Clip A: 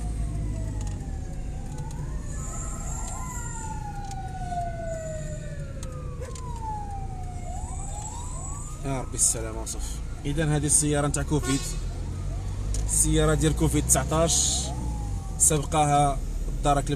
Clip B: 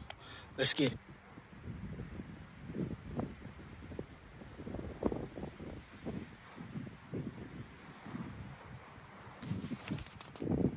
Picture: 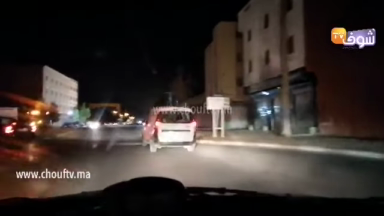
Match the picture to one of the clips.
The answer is A